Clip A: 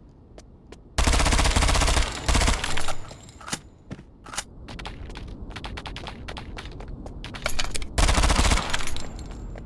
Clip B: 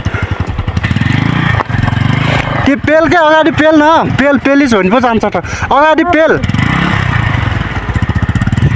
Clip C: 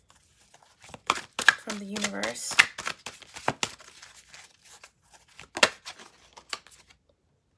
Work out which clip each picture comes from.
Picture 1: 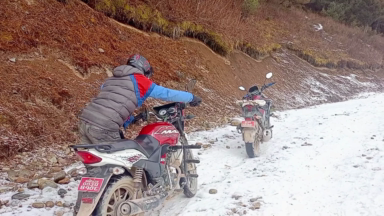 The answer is B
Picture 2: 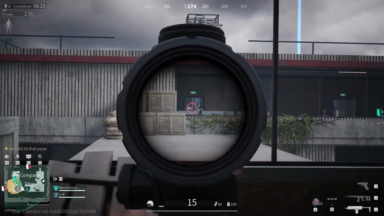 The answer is A